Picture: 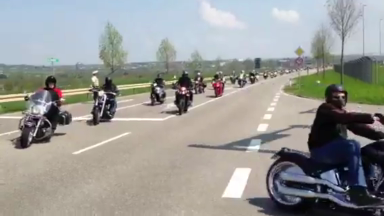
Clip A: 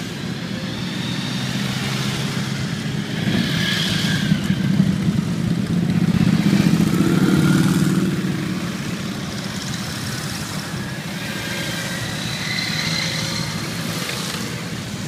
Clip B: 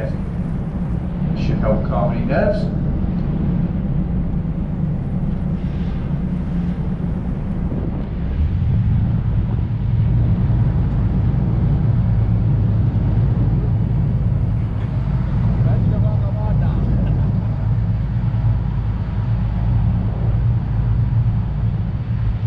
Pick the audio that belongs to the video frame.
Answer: A